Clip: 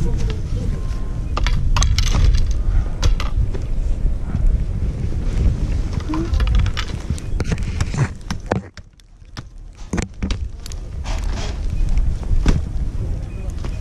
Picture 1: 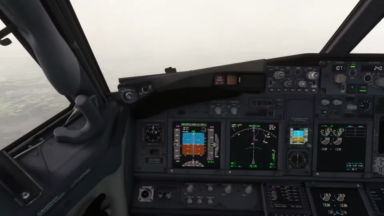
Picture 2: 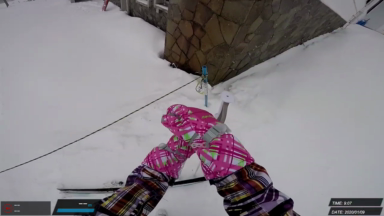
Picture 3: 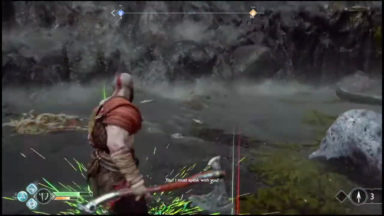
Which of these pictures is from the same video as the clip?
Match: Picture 2